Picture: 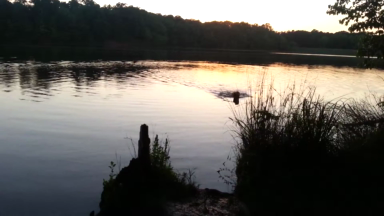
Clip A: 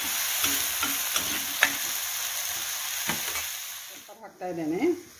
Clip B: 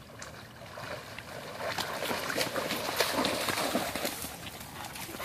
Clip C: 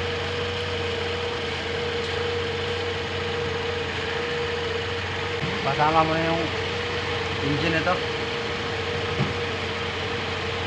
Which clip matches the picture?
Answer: B